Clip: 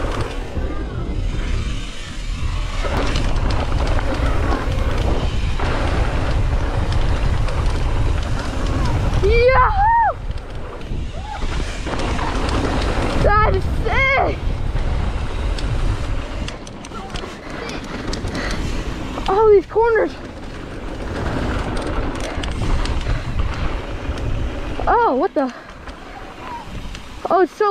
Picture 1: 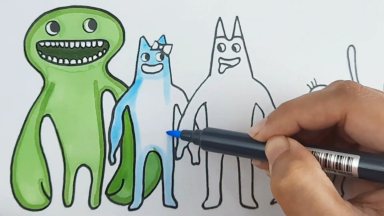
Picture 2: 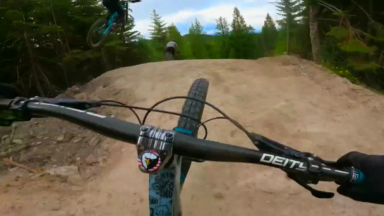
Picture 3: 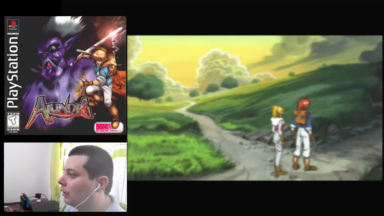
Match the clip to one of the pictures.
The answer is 2